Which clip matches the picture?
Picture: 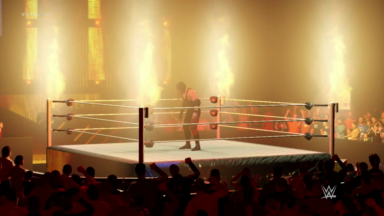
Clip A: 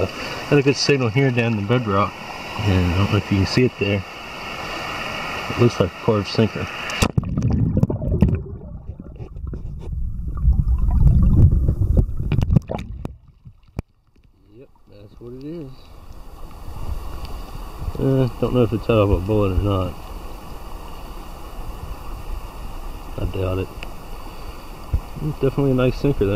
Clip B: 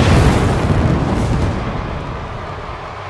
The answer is B